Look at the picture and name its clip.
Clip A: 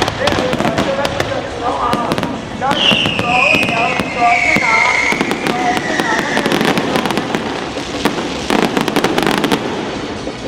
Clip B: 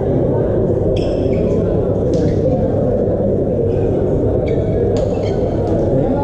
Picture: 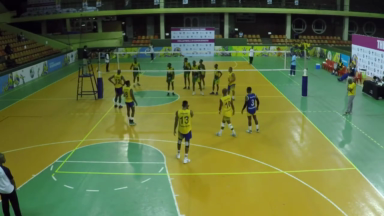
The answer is B